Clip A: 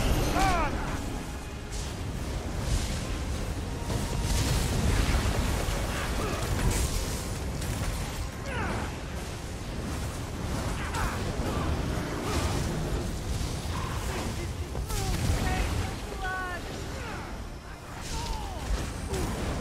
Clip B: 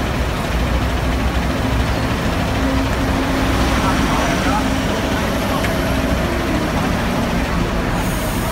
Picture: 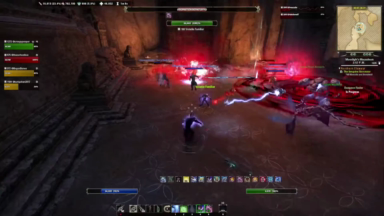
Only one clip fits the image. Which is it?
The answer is A